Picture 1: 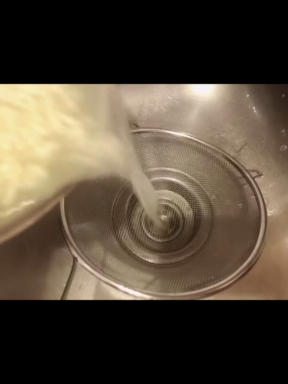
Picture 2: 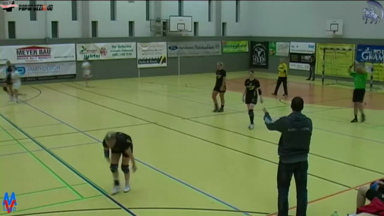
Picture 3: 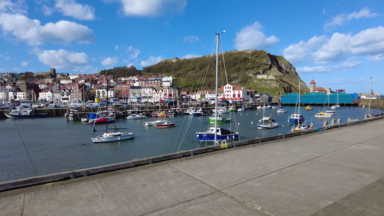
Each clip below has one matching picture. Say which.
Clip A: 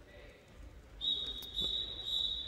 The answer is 2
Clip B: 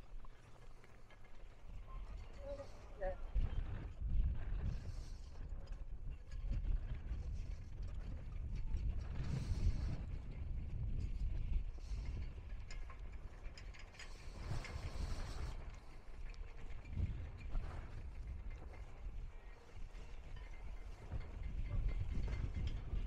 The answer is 3